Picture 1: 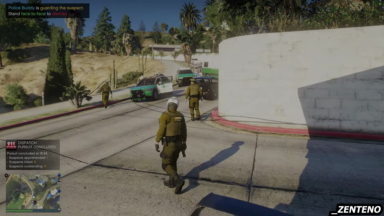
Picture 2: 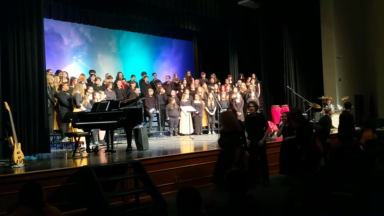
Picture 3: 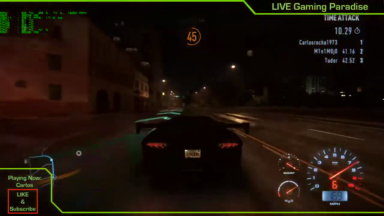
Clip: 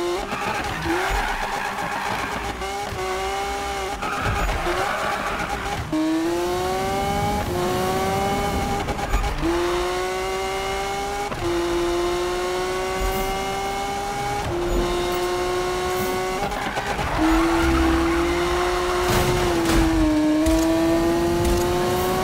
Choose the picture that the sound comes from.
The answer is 3